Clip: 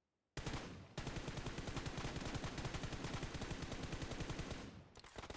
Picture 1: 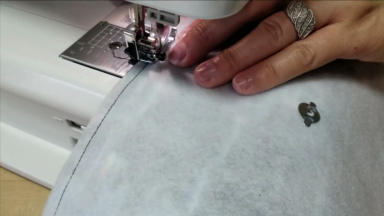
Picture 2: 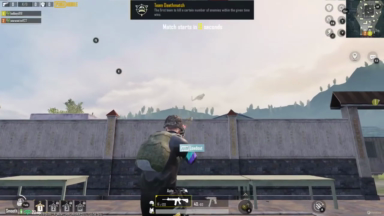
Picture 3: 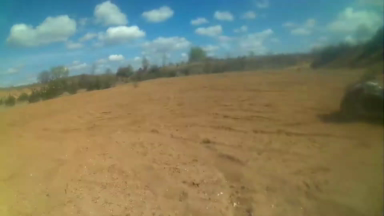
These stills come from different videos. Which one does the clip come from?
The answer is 2